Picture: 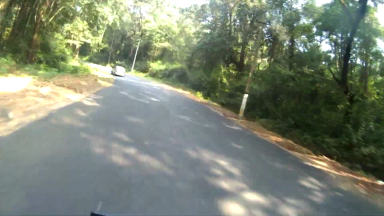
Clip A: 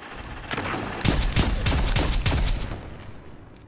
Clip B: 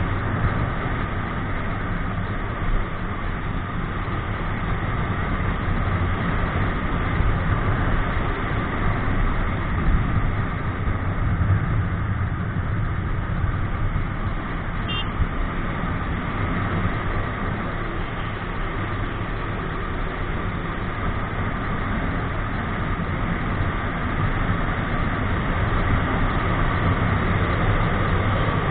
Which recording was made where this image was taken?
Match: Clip B